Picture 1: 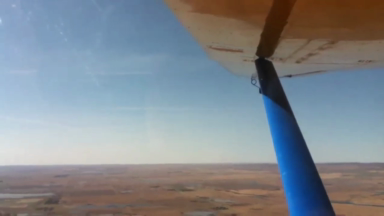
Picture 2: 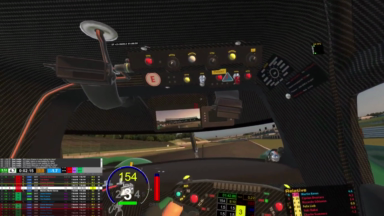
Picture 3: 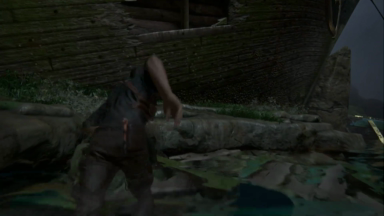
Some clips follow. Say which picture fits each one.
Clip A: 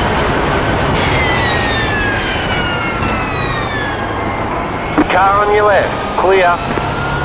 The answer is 2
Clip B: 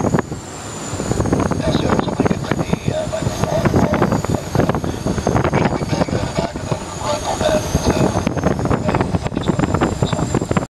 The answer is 1